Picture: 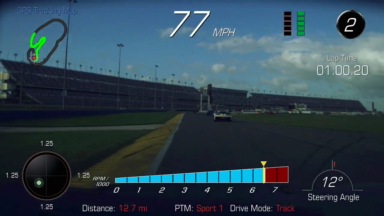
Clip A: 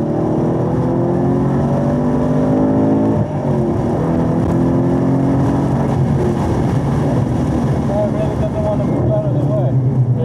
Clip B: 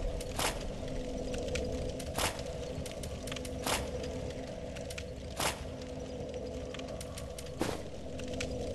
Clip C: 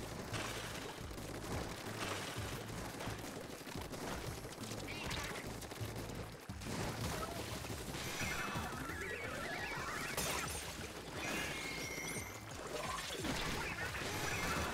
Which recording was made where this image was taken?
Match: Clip A